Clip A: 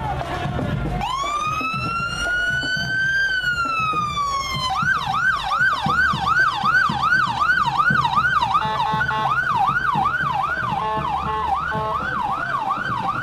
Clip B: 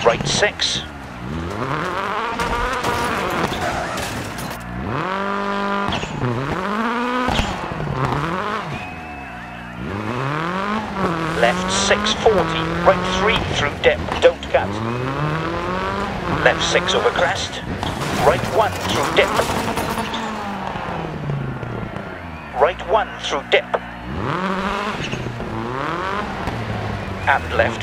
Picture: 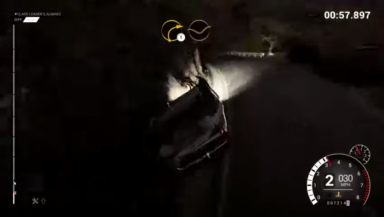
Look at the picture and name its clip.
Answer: B